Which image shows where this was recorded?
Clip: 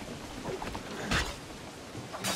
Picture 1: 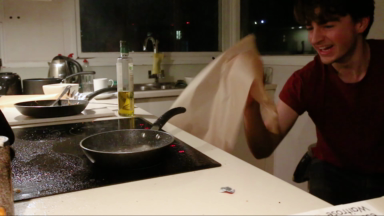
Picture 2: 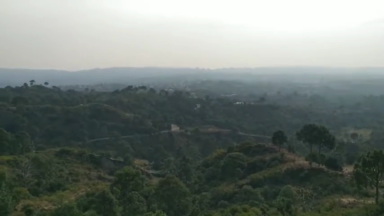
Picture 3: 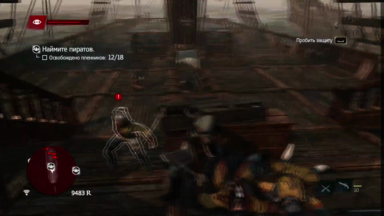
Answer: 3